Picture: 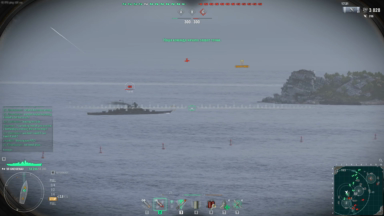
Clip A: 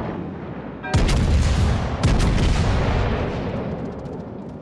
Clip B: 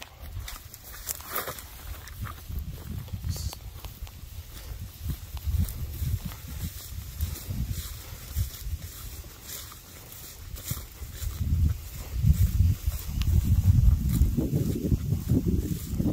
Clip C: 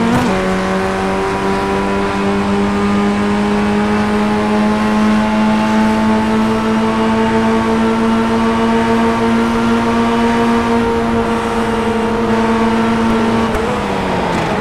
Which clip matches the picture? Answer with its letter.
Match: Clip A